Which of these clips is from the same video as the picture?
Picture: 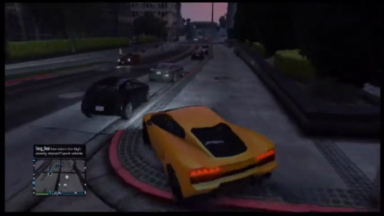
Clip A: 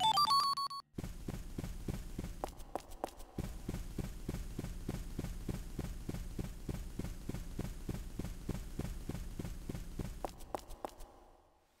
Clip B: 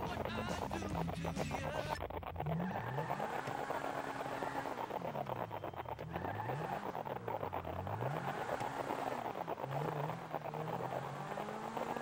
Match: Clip B